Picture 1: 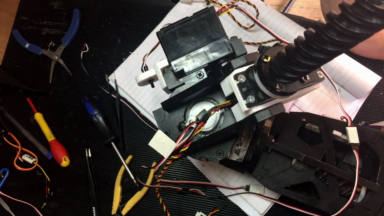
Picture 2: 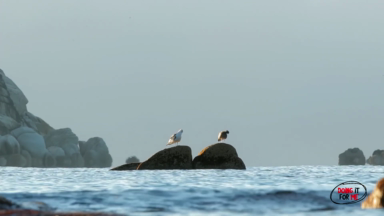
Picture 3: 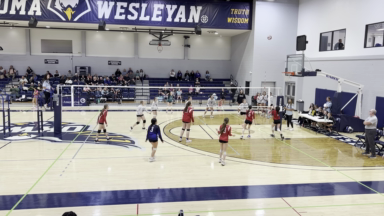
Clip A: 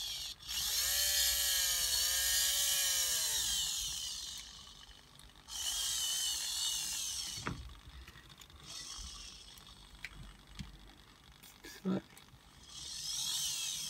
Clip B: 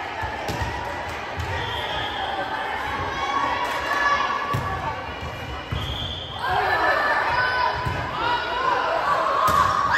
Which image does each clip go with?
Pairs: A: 1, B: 3